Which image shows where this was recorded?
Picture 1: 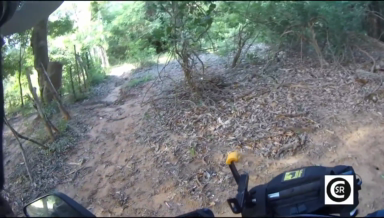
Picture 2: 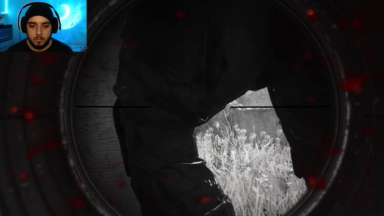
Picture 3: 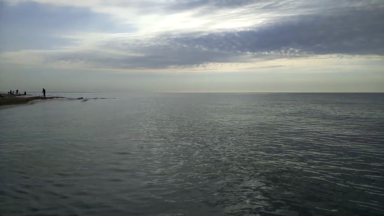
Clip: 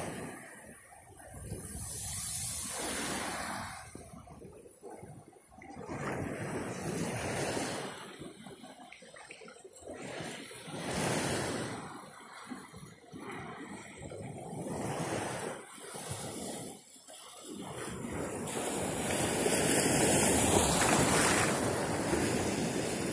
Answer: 3